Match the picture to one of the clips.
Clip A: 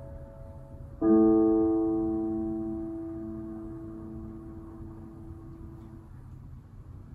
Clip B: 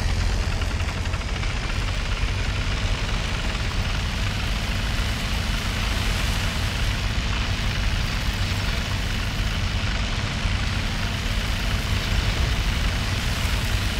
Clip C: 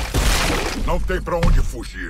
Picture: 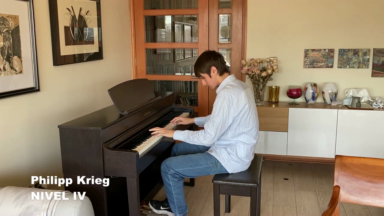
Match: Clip A